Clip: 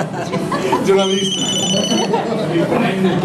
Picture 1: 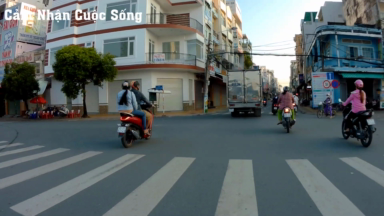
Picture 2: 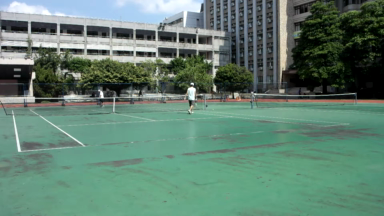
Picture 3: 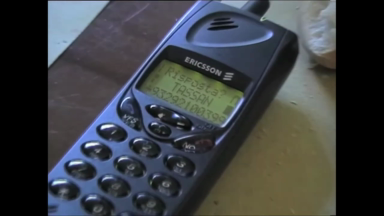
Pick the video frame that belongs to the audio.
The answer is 3